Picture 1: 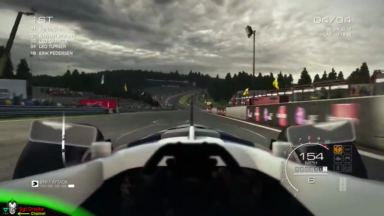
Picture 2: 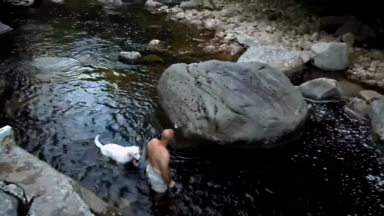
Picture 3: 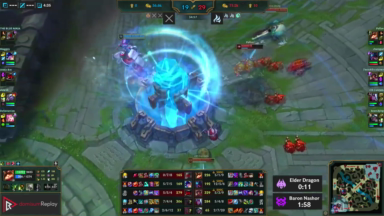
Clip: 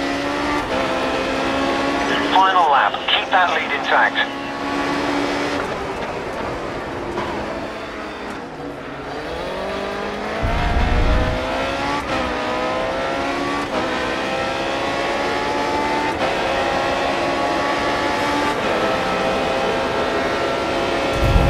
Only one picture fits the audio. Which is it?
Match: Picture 1